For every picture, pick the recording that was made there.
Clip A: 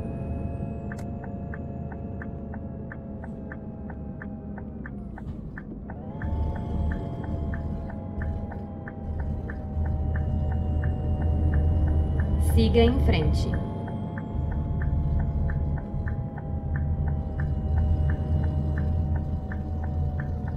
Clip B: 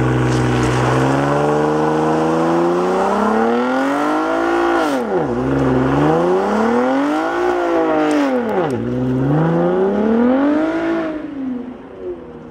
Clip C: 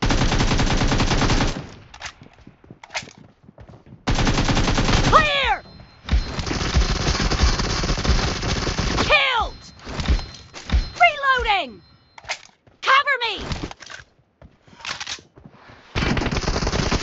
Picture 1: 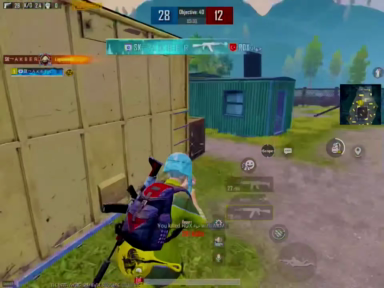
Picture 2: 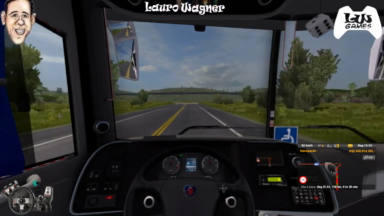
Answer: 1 C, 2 A